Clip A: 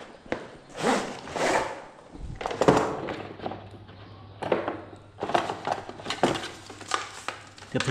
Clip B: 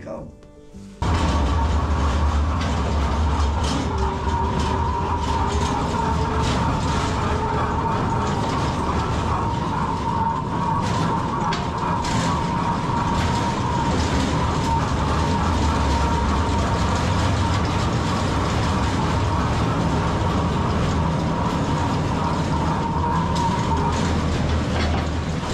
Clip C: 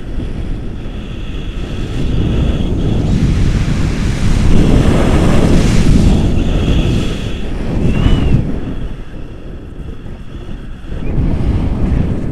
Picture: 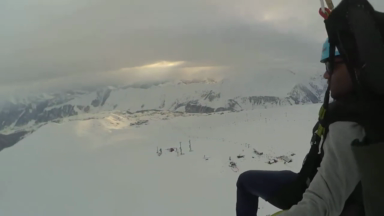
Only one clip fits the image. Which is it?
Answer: C